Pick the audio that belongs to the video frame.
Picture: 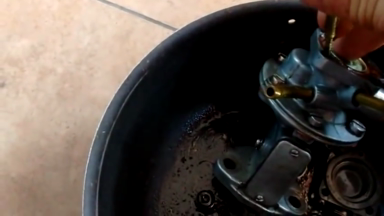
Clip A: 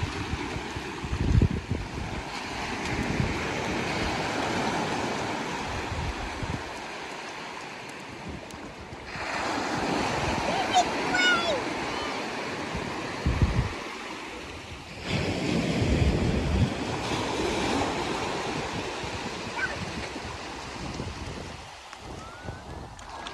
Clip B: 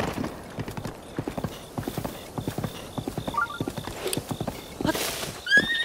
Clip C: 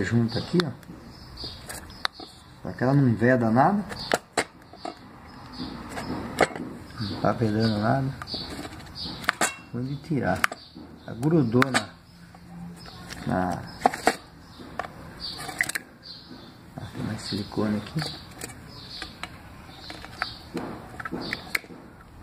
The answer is C